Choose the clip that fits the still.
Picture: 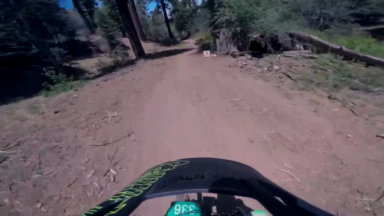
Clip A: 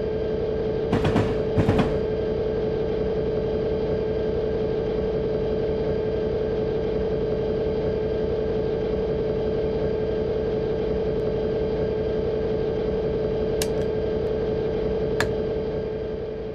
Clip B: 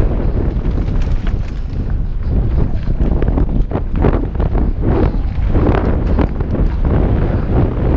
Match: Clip B